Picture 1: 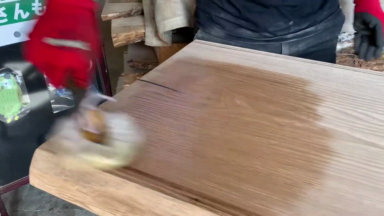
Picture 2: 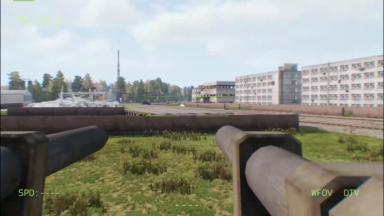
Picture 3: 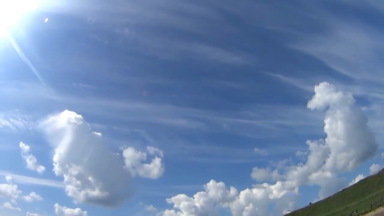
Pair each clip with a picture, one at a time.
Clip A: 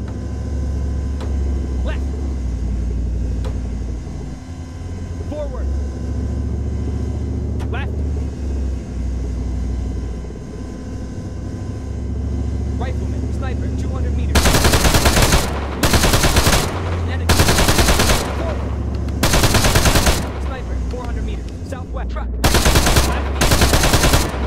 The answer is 2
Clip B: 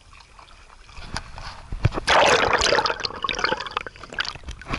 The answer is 3